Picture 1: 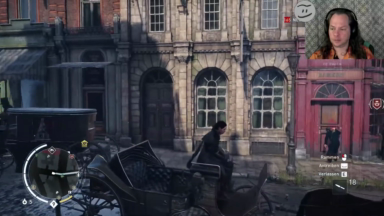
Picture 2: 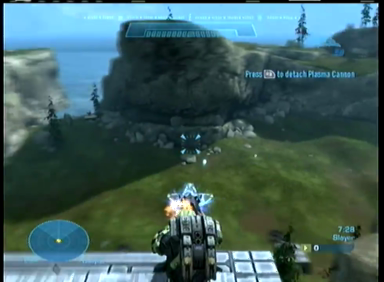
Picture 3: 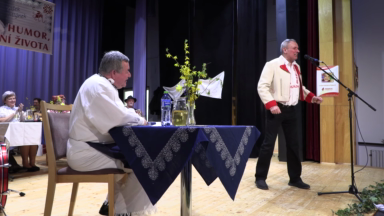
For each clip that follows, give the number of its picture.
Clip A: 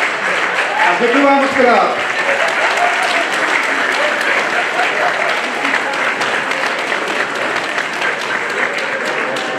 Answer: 3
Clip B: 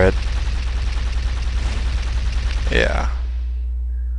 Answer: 2